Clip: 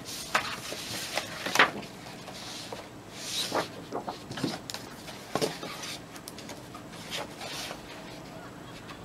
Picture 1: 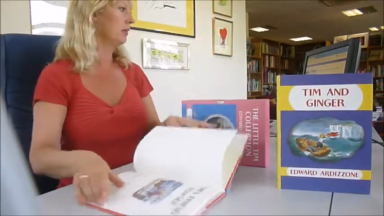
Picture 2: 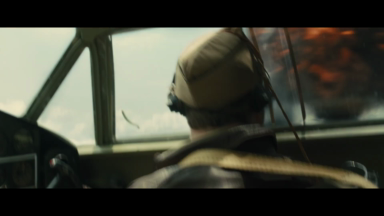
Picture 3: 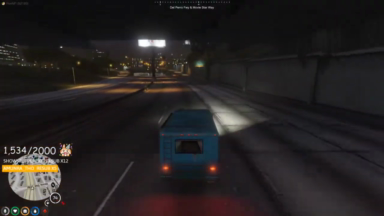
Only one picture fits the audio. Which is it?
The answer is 1